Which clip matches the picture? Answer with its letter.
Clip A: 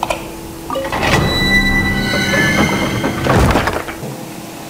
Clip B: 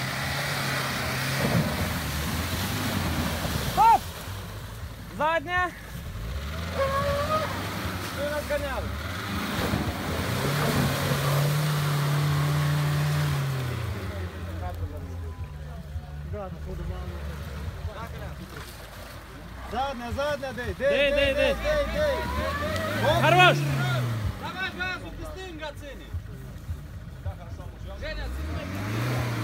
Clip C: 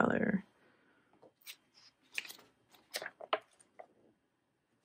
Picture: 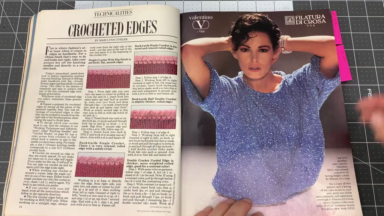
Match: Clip C